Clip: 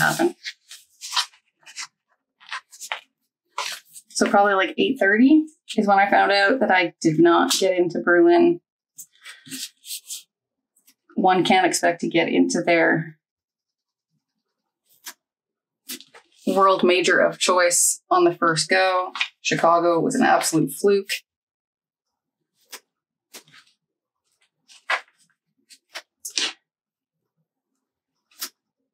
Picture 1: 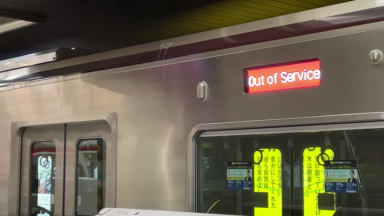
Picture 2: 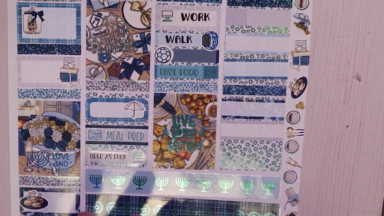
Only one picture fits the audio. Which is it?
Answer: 2